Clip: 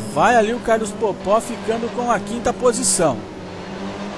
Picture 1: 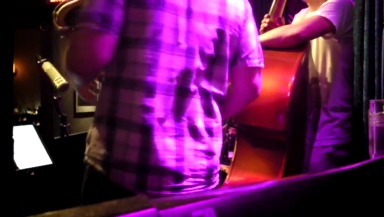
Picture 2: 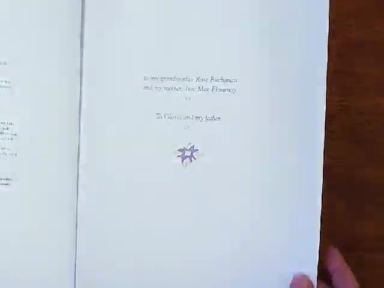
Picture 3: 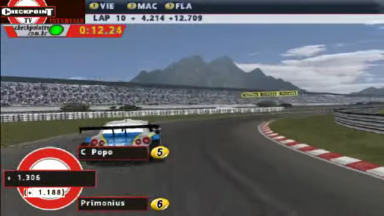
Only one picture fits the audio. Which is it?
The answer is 3